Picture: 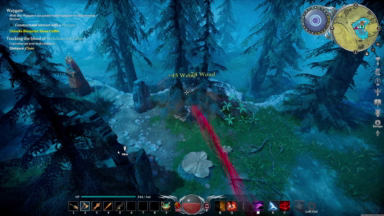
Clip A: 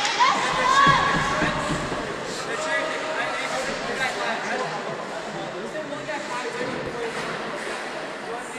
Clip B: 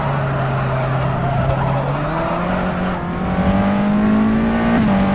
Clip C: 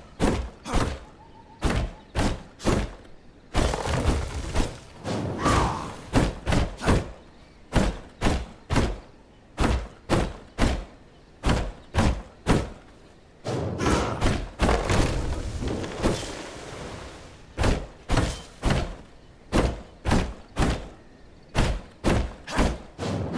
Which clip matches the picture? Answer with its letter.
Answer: C